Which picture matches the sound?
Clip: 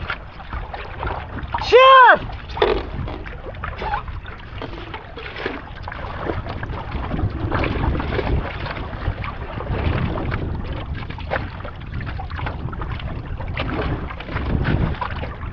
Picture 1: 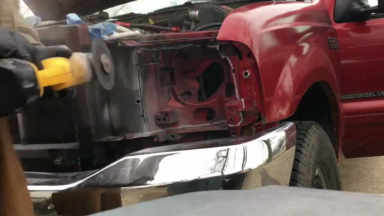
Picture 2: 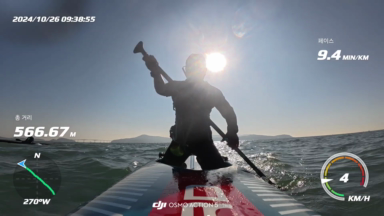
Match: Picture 2